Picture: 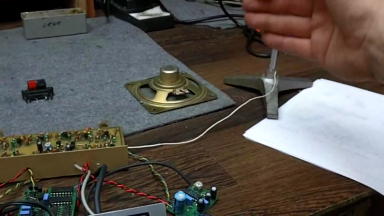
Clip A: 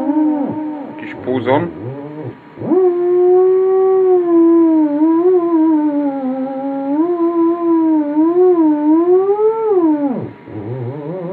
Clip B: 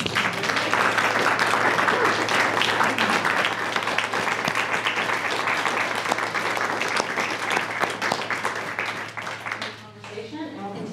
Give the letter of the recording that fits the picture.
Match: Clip A